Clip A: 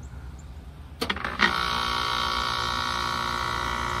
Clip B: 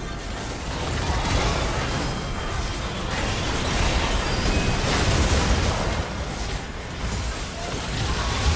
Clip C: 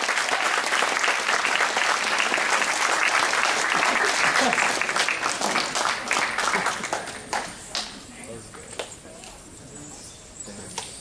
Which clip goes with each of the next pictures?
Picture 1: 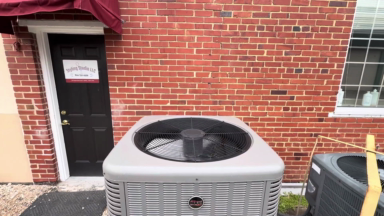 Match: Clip A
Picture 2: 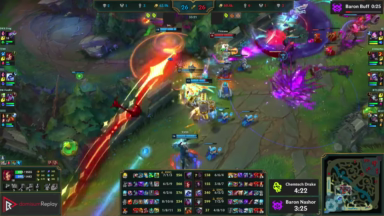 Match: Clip B